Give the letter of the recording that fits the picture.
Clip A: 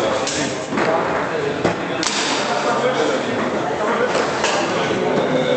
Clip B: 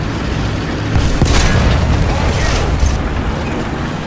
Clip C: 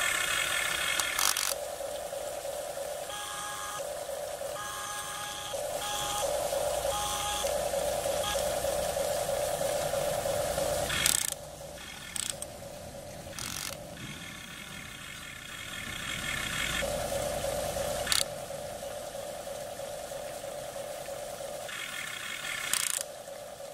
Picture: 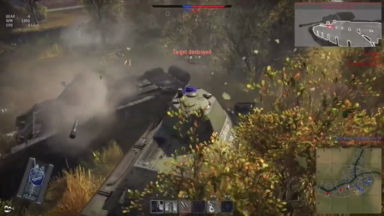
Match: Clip B